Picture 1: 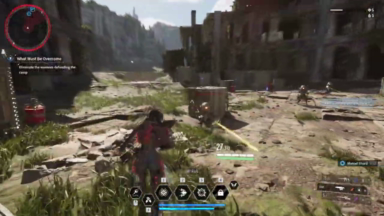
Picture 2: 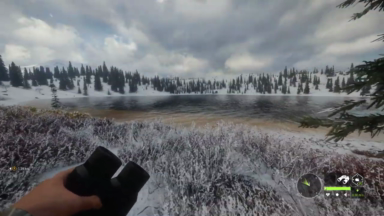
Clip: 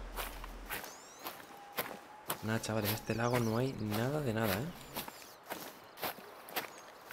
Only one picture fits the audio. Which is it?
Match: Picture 2